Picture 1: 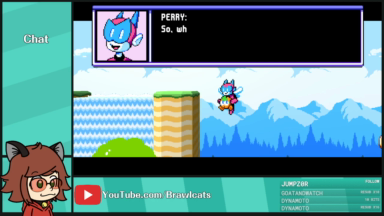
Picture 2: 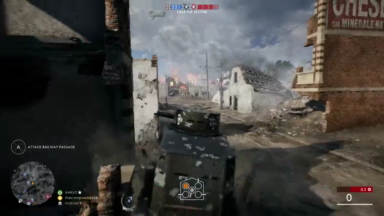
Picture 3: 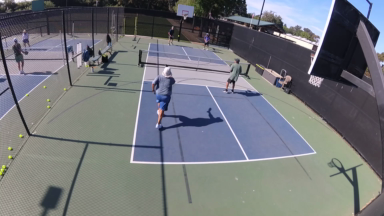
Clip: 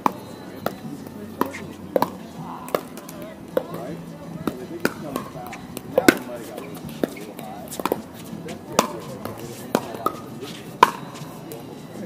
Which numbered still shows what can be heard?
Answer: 3